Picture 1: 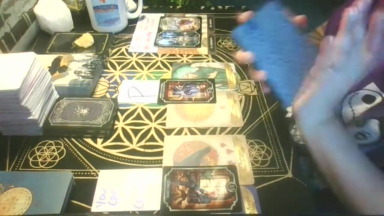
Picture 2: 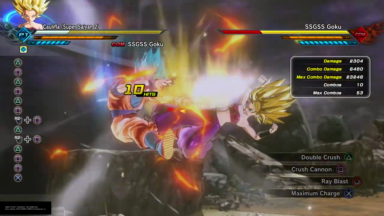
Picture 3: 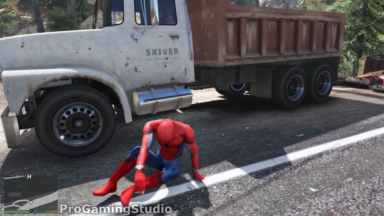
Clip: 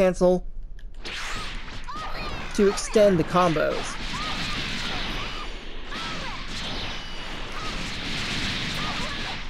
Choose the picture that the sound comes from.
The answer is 2